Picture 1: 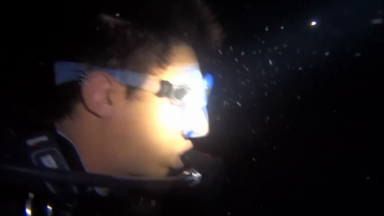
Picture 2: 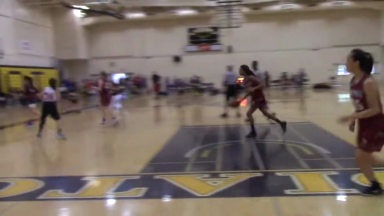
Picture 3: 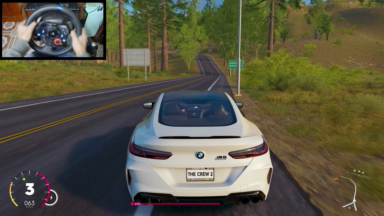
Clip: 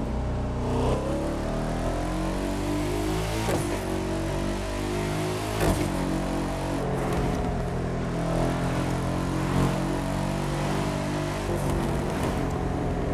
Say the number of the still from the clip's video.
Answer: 3